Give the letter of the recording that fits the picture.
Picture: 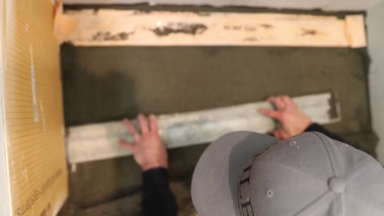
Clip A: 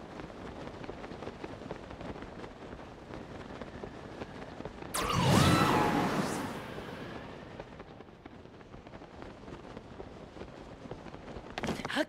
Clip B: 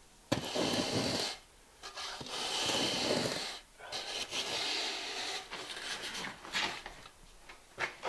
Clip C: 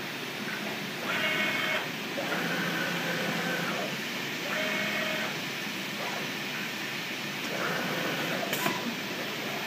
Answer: B